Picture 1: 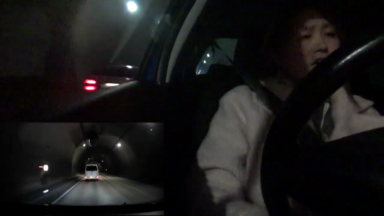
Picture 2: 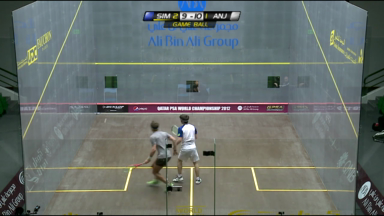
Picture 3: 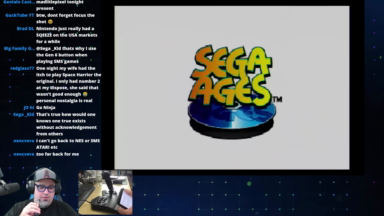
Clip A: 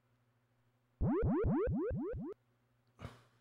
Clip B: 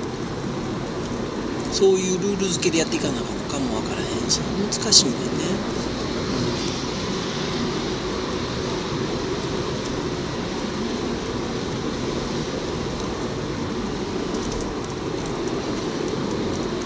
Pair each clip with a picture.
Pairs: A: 3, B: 1